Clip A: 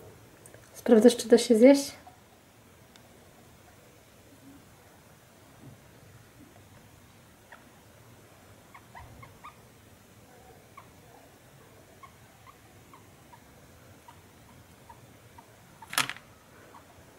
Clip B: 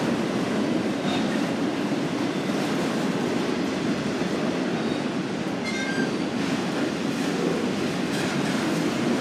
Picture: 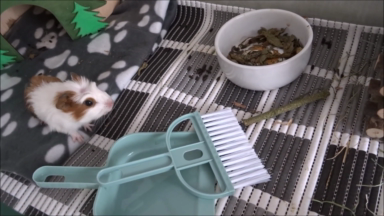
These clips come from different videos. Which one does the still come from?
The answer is A